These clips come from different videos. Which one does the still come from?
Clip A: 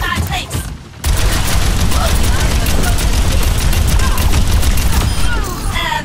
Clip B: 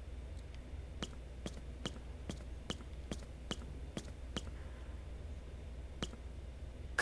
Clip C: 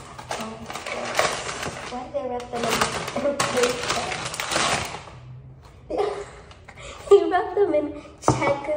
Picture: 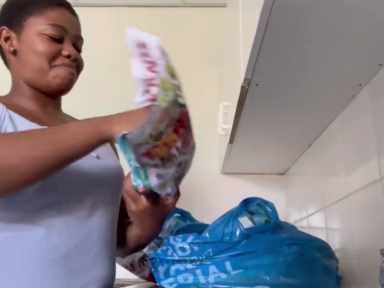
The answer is C